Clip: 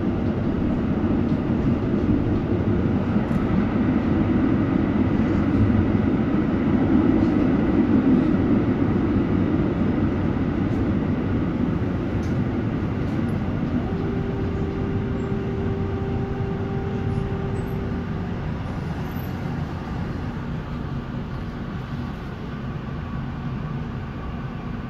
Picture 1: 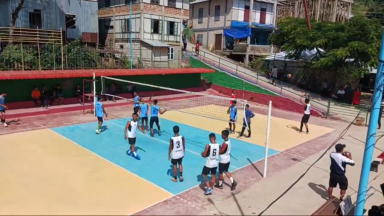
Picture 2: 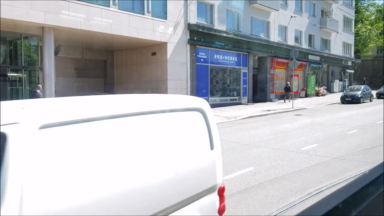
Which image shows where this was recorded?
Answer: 2